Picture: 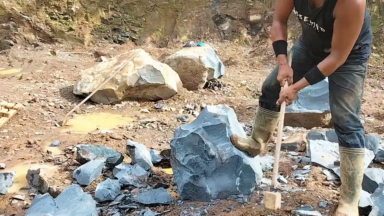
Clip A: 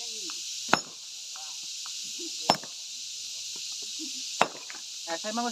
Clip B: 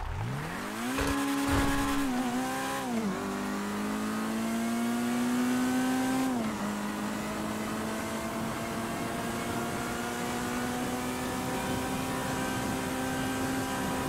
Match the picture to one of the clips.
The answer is A